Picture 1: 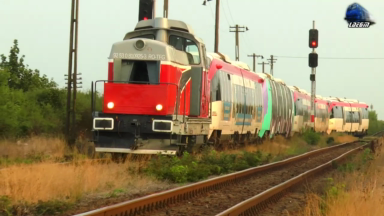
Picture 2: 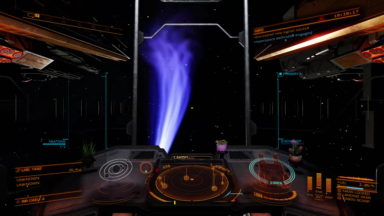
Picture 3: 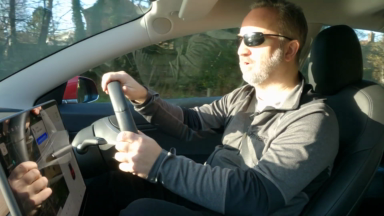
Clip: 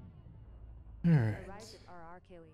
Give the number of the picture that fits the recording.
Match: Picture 2